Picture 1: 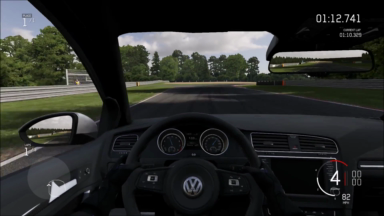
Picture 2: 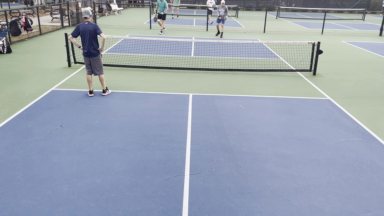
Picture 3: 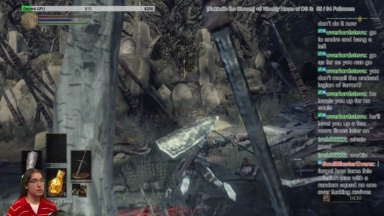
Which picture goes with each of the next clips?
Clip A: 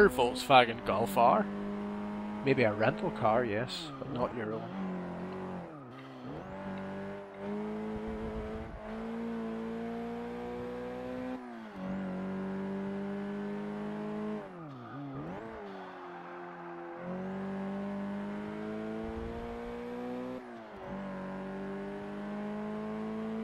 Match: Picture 1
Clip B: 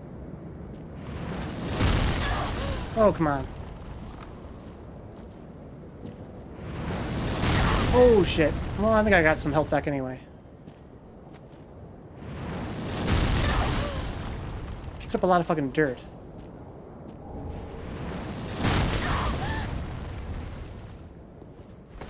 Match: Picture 3